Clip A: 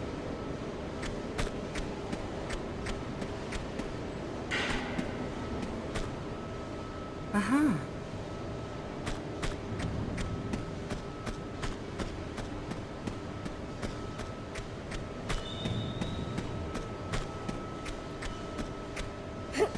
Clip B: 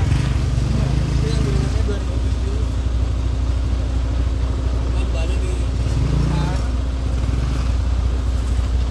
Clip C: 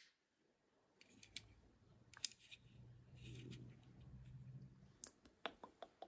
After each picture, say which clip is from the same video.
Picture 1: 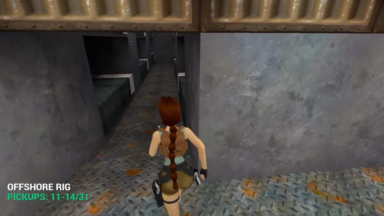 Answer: A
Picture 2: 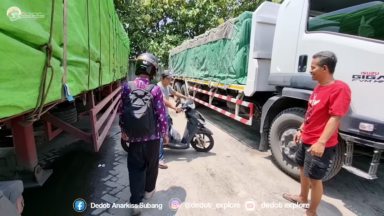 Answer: B